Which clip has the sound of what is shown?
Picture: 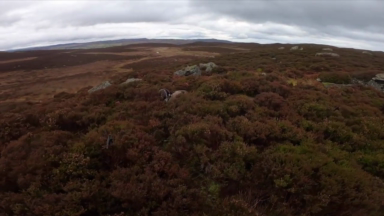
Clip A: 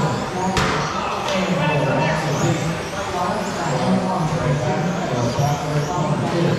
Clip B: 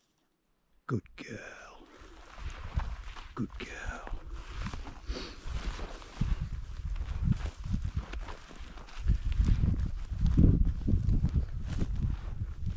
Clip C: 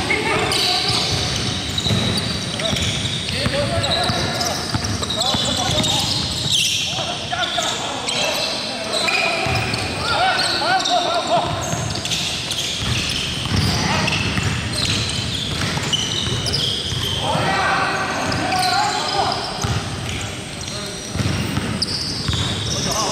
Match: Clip B